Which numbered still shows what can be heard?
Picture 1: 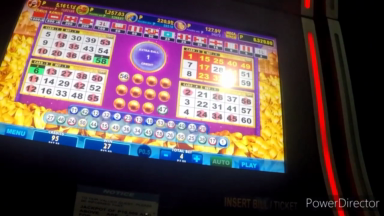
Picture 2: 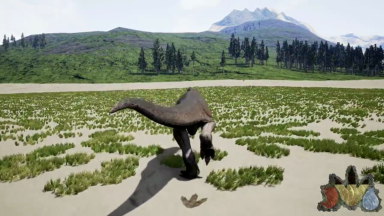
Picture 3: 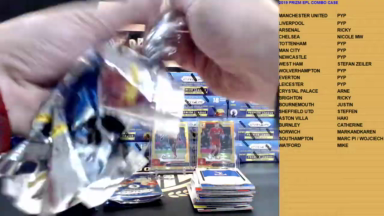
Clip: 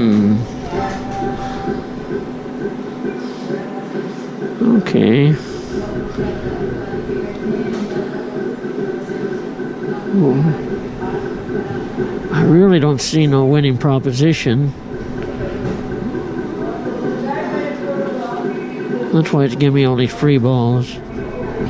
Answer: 1